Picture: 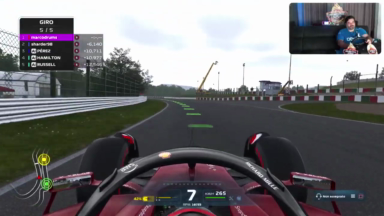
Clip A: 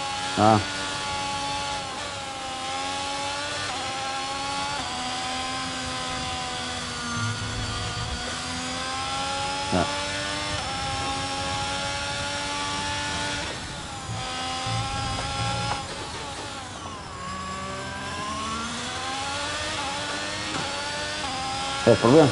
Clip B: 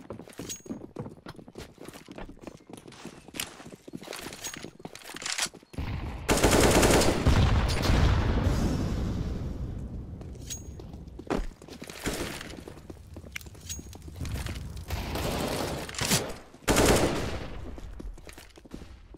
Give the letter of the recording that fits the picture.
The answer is A